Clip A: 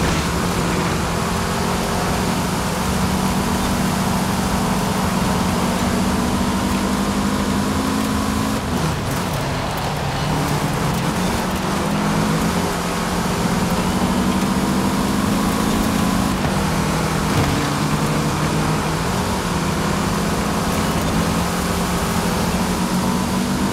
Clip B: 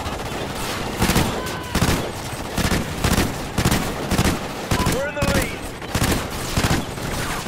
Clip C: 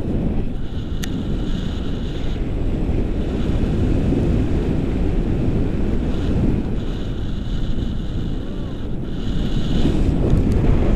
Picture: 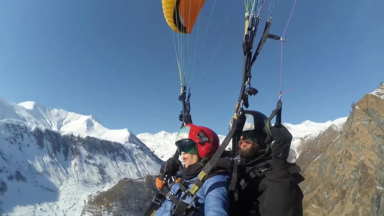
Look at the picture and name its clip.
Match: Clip C